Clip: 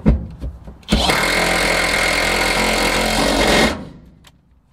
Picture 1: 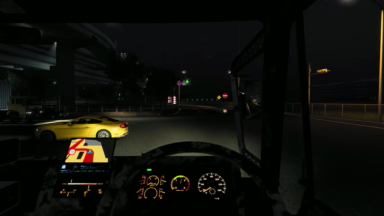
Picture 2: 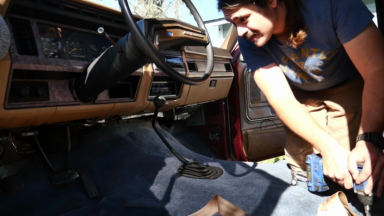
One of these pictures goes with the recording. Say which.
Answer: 2